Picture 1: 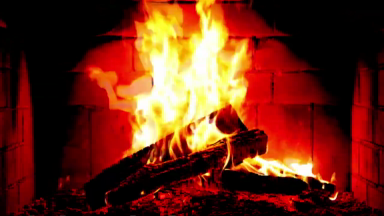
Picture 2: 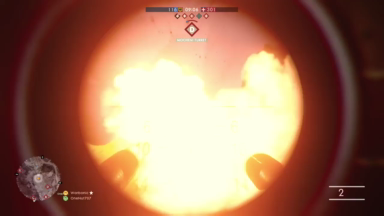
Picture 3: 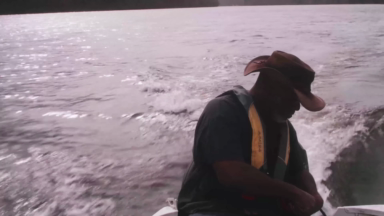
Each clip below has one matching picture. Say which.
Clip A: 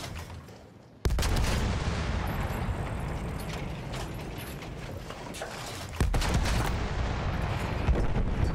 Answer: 2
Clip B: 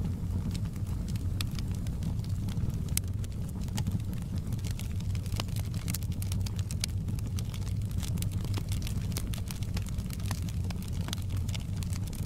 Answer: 1